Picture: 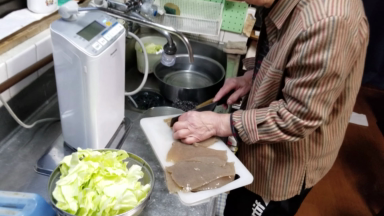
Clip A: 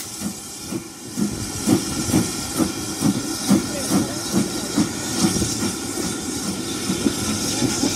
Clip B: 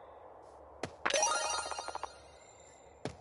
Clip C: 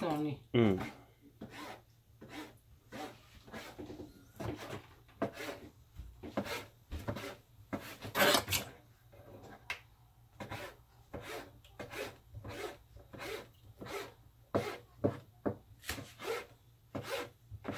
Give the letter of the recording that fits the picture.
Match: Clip C